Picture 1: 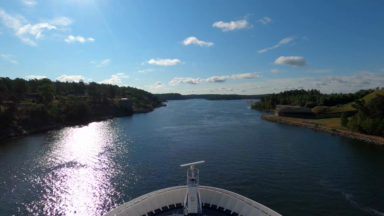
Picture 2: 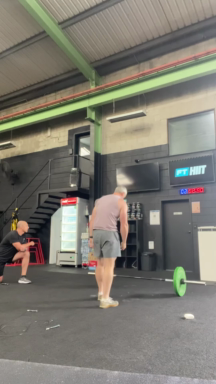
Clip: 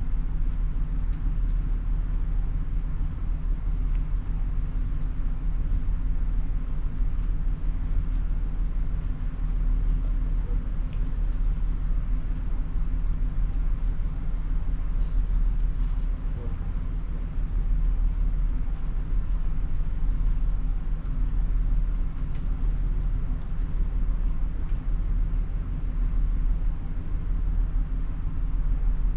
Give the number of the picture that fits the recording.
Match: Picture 1